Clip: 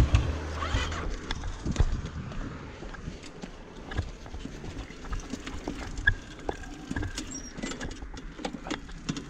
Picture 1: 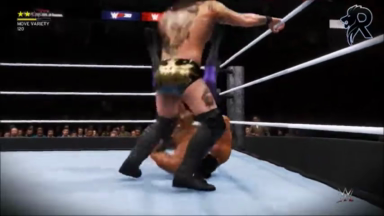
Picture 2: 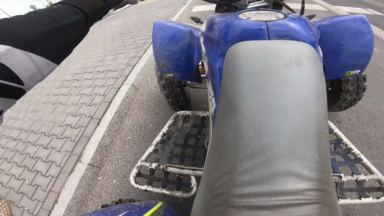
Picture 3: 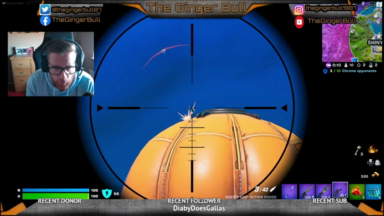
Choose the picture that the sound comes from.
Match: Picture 2